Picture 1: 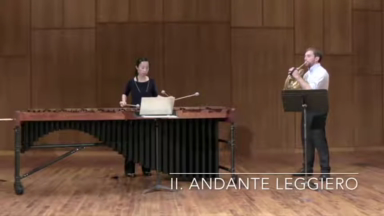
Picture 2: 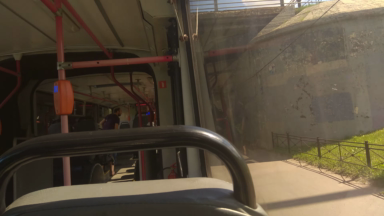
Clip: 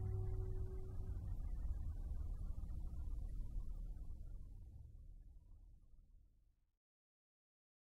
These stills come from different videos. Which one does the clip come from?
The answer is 1